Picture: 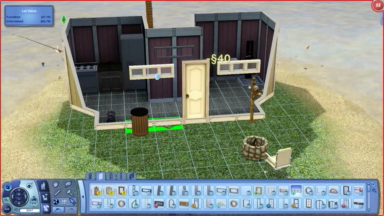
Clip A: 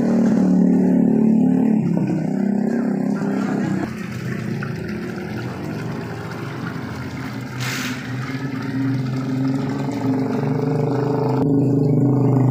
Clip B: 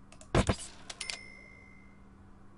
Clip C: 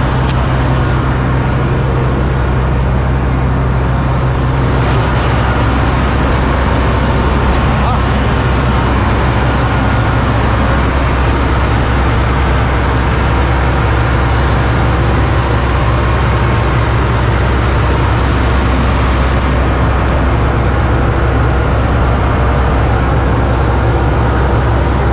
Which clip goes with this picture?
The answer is B